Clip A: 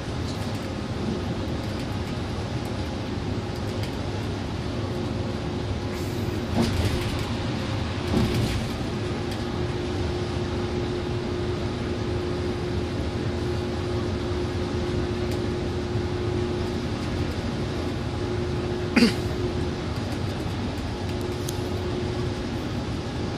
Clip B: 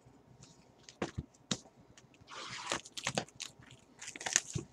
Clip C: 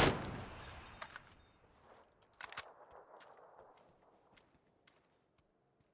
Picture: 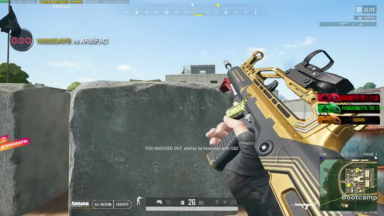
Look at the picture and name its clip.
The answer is C